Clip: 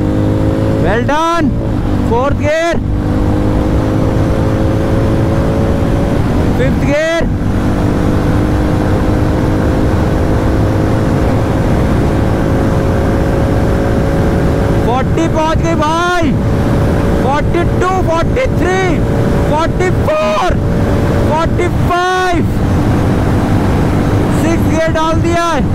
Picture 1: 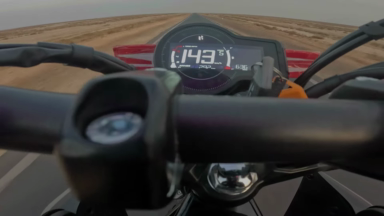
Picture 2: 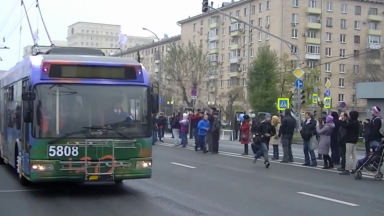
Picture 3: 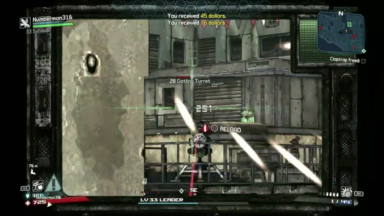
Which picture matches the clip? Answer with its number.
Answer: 1